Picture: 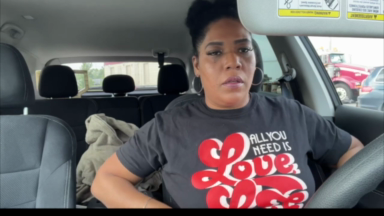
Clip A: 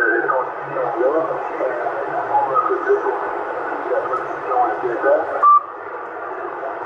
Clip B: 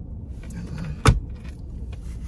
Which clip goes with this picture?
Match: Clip B